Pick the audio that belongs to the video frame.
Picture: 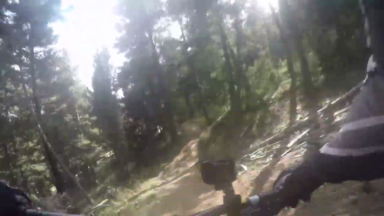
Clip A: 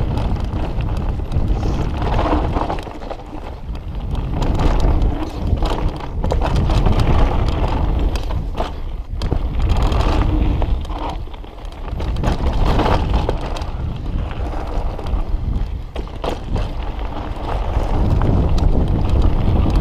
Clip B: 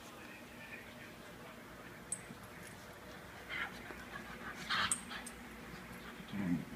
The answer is A